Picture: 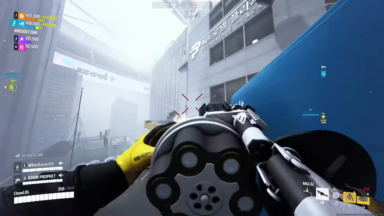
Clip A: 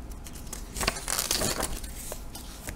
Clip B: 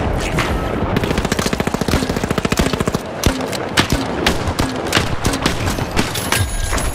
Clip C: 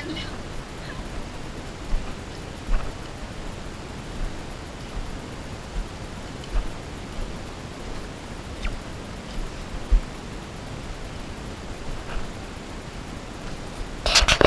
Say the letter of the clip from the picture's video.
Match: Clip B